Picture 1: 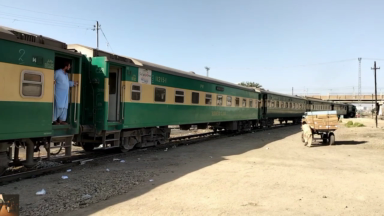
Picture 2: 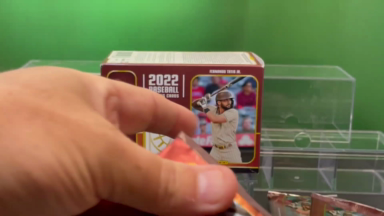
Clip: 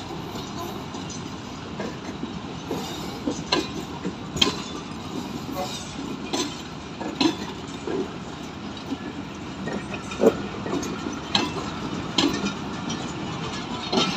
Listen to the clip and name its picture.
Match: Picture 1